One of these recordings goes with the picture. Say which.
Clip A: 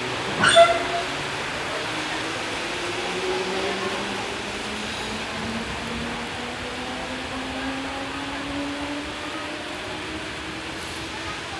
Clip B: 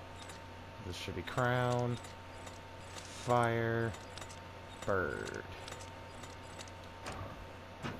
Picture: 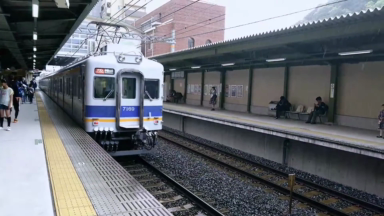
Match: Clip A